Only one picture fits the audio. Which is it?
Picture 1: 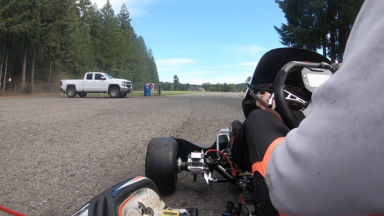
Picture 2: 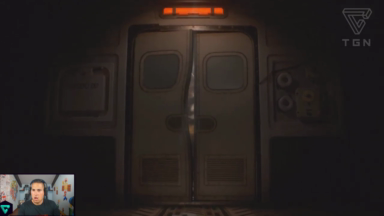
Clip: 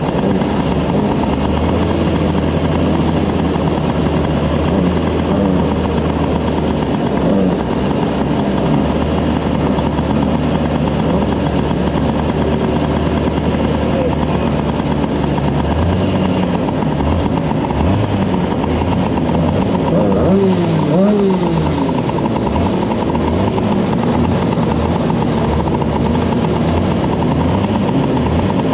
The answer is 1